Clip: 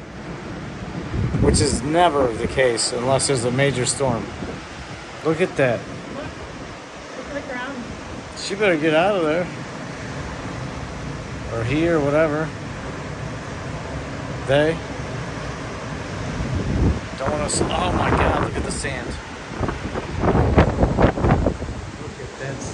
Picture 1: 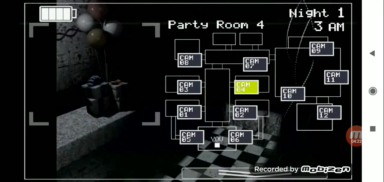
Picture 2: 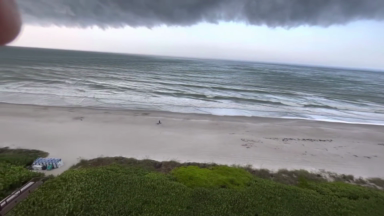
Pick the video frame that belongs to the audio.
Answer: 2